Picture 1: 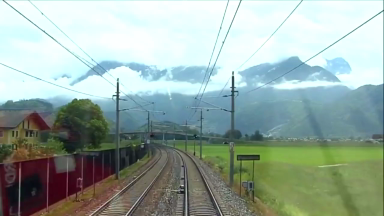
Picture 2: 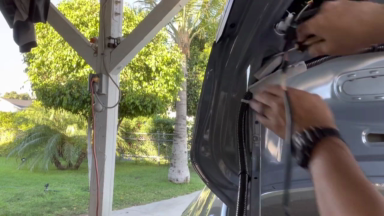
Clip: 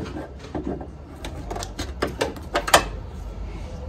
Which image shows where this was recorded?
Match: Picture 2